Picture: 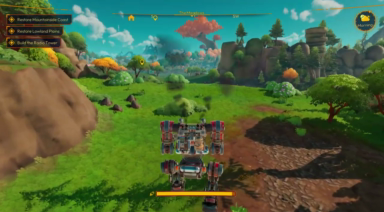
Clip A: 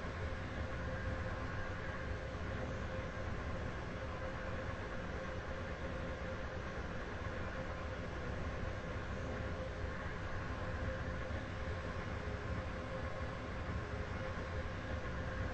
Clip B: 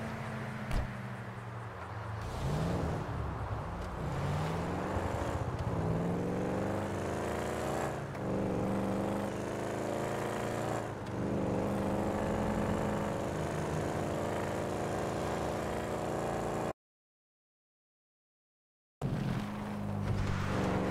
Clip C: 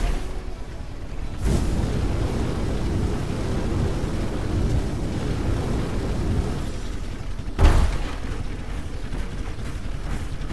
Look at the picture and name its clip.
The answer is C